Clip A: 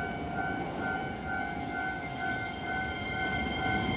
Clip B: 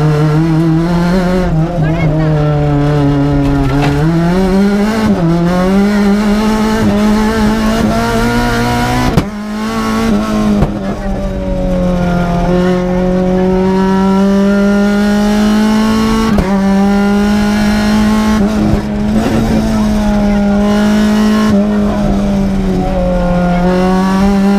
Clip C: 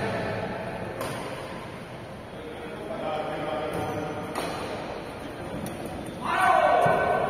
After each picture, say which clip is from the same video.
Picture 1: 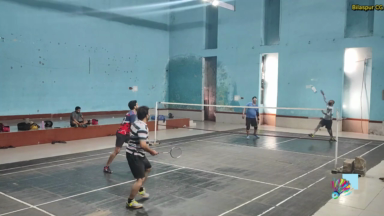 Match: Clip C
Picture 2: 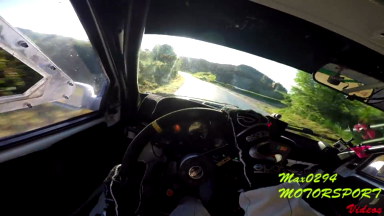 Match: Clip B